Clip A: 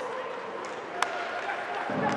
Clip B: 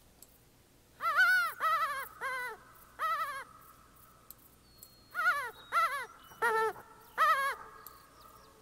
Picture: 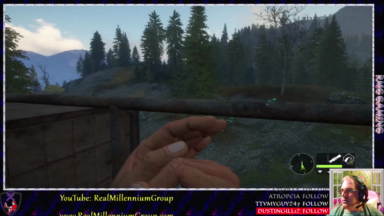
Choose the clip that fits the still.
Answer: B